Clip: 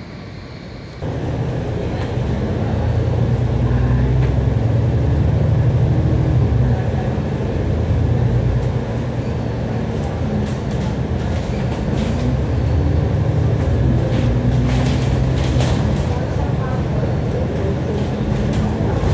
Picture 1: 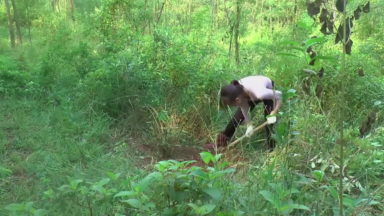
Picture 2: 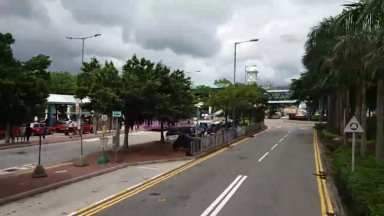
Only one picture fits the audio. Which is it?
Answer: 2